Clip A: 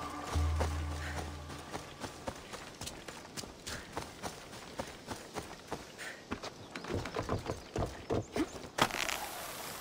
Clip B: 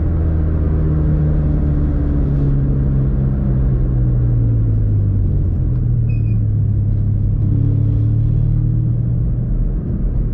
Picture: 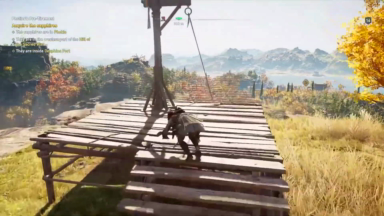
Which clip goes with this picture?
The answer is A